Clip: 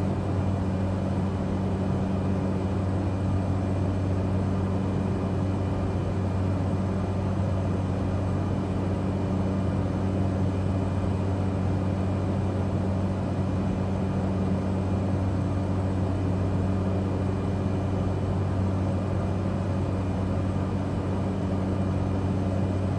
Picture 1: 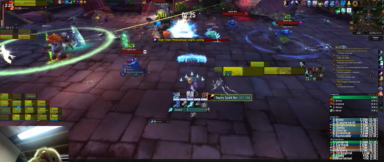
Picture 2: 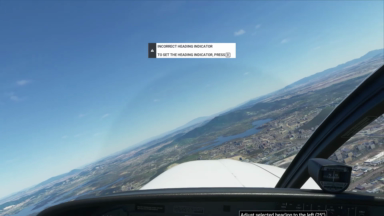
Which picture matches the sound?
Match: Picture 2